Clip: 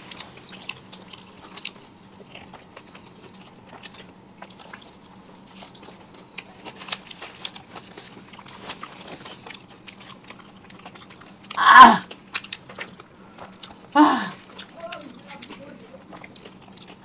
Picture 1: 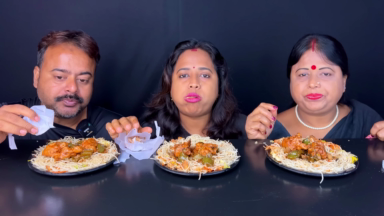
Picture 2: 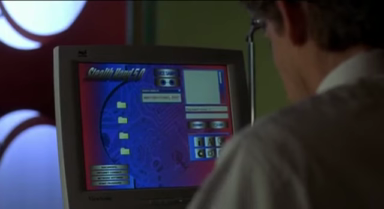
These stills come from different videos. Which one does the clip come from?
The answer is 1